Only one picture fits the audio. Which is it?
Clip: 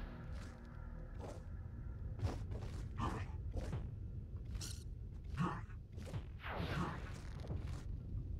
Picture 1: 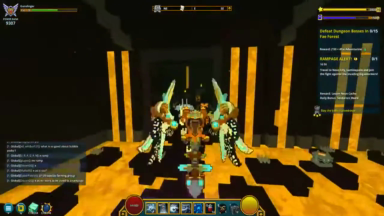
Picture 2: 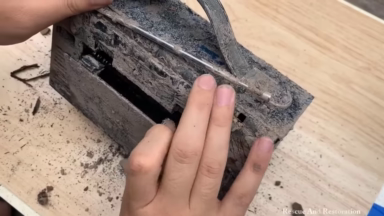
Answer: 1